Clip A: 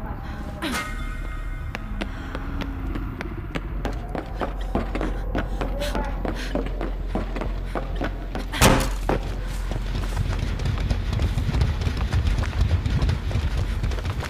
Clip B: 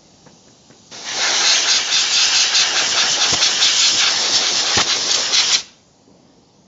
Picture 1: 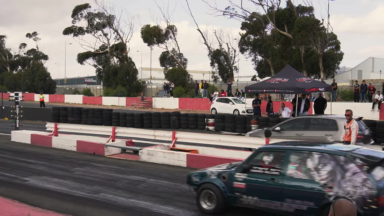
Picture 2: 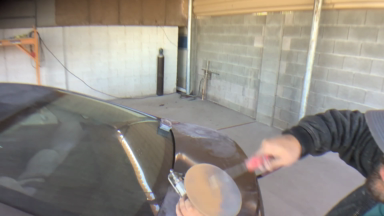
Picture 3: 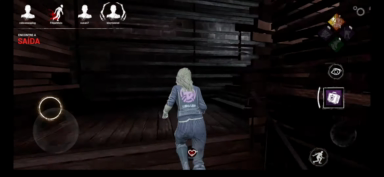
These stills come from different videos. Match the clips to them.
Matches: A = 3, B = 2